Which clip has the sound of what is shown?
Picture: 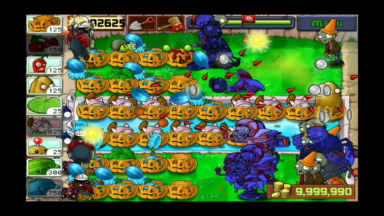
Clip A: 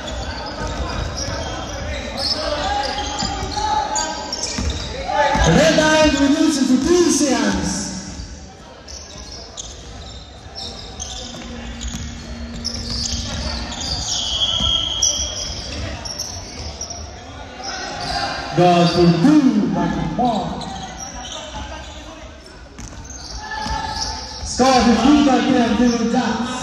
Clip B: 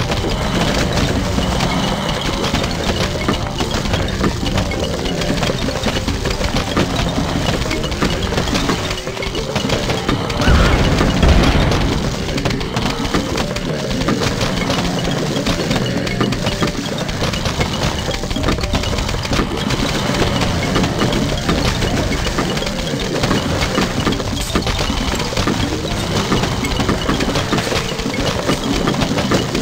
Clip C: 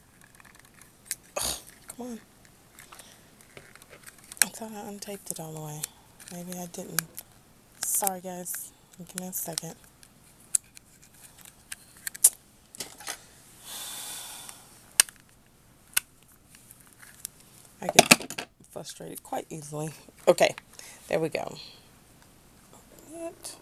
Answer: B